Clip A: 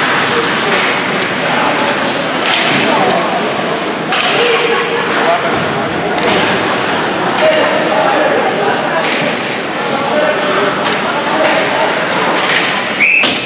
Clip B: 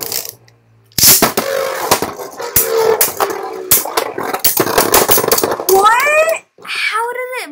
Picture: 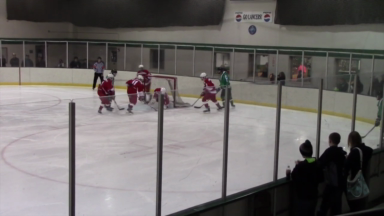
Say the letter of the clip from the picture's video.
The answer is A